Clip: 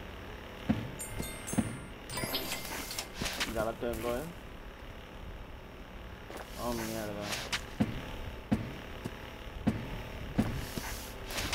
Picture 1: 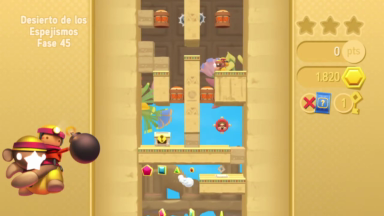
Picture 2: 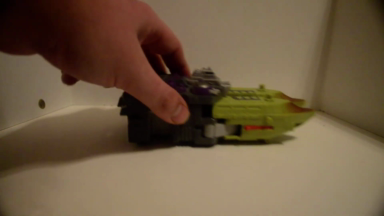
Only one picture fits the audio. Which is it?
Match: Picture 1